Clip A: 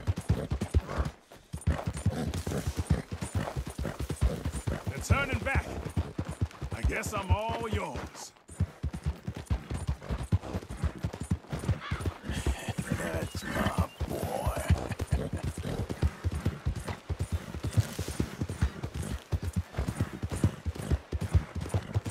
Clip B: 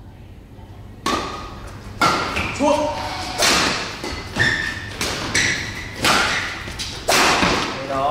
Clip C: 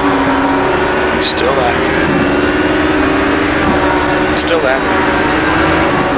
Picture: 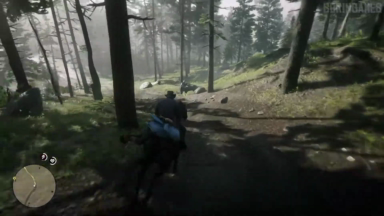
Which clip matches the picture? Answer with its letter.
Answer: A